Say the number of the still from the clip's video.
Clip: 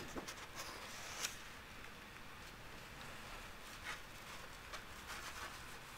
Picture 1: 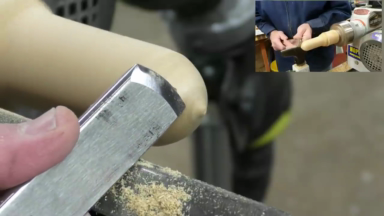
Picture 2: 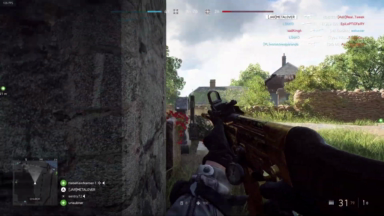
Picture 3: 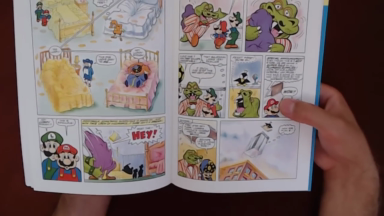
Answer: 3